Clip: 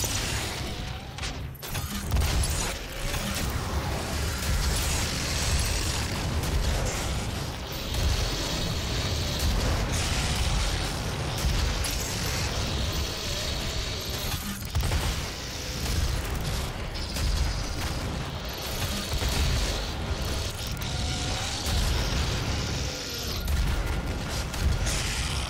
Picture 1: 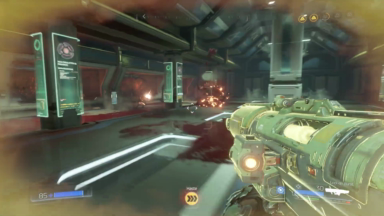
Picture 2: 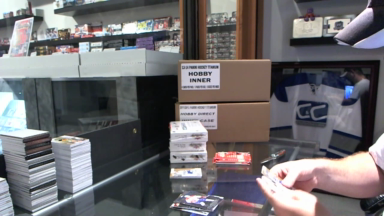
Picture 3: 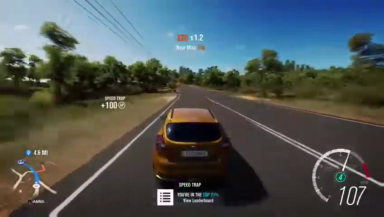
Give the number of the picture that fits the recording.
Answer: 1